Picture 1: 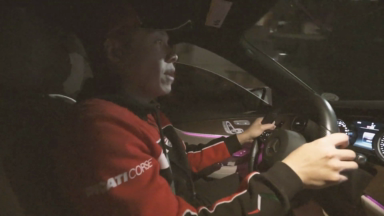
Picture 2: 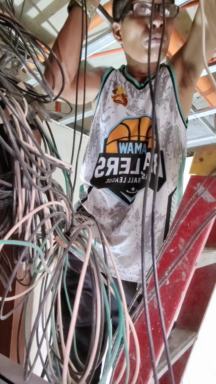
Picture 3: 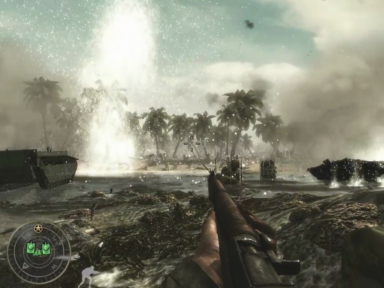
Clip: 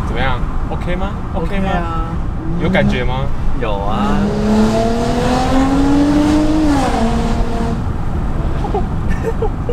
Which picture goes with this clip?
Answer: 1